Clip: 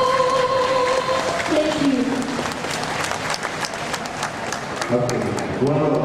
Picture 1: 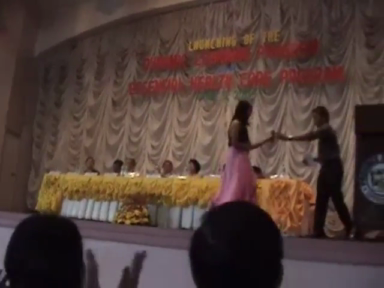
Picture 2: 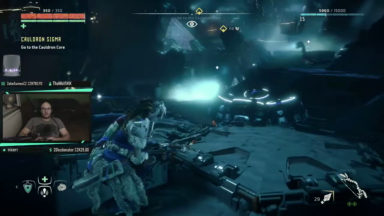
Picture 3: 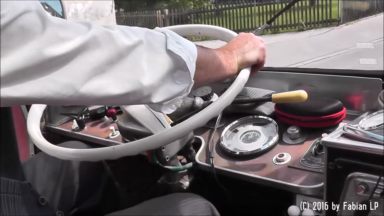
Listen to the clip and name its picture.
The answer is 1